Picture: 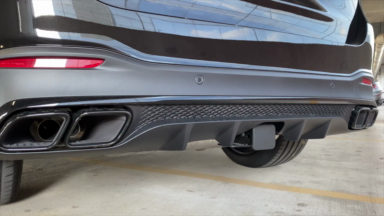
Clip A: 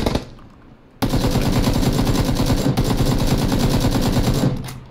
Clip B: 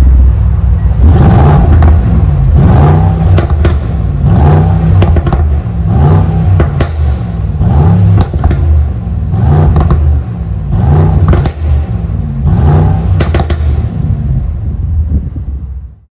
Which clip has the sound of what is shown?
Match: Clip B